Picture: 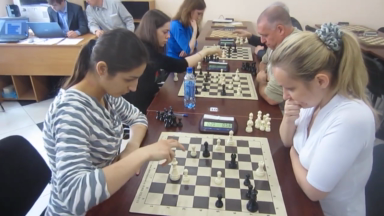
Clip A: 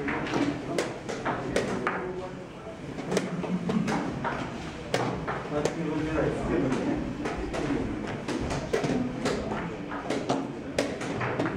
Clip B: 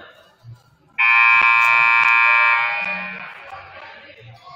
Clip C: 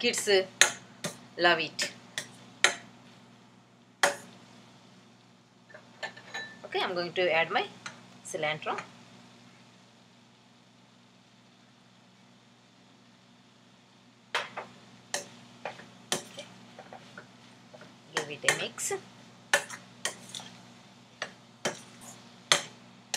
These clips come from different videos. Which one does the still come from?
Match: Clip A